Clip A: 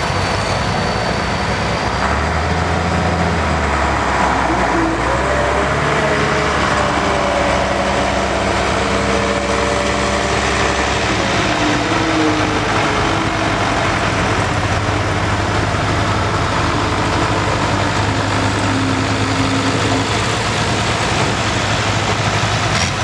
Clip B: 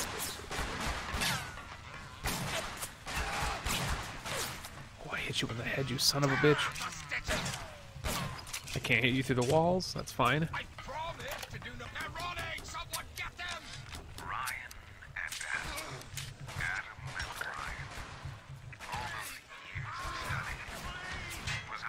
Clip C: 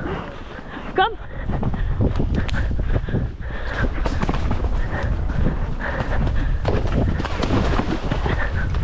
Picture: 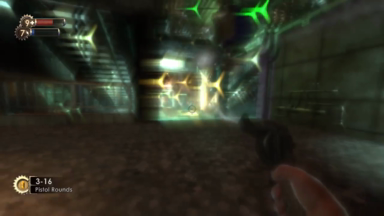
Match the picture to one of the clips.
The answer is B